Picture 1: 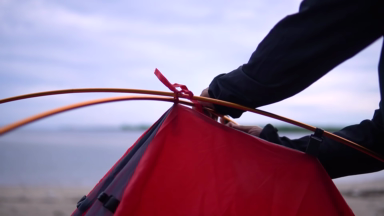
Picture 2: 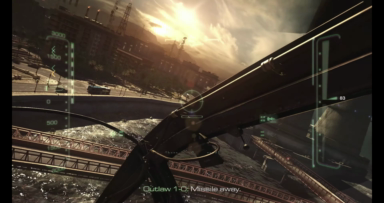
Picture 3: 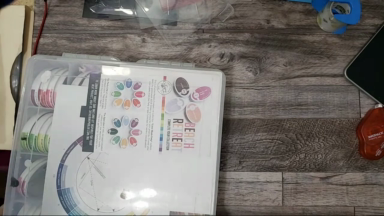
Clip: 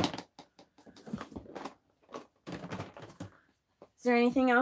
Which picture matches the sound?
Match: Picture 3